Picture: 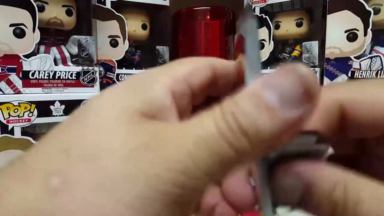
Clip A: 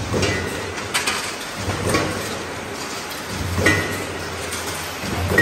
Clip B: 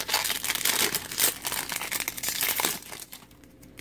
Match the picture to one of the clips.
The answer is B